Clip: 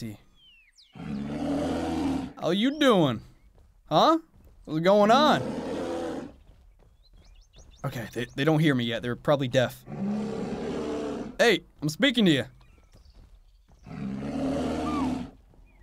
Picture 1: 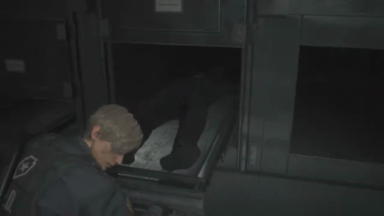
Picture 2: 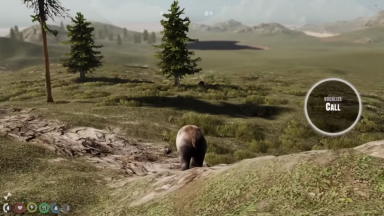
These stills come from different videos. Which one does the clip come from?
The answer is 2